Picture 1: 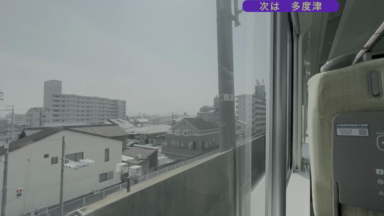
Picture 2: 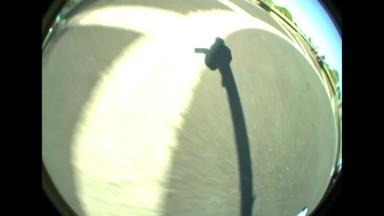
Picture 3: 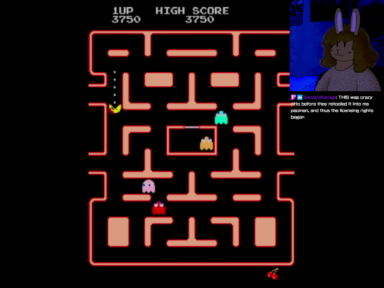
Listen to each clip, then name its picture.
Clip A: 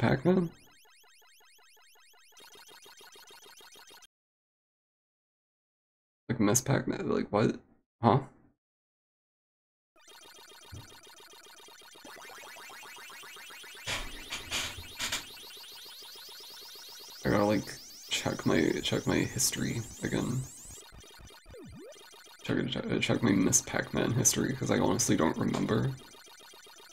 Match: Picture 3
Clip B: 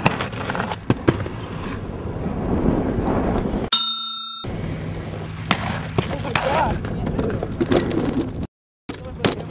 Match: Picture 2